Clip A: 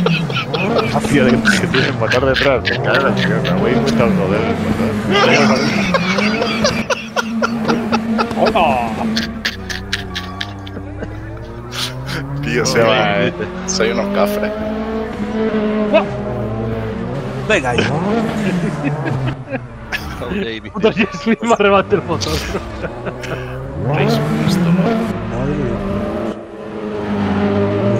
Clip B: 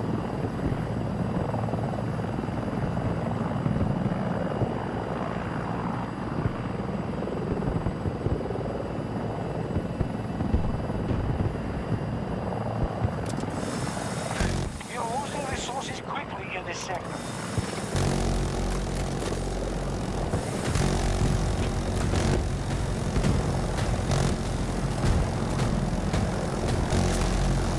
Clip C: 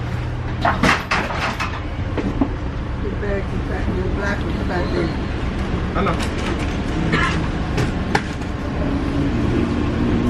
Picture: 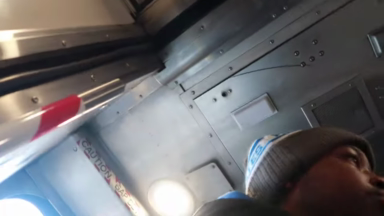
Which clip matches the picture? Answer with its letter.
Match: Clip C